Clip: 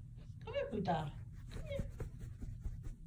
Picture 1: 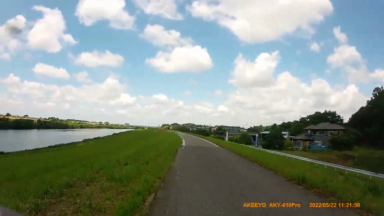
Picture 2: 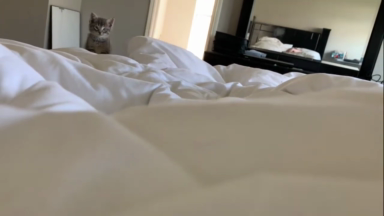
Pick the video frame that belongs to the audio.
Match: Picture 2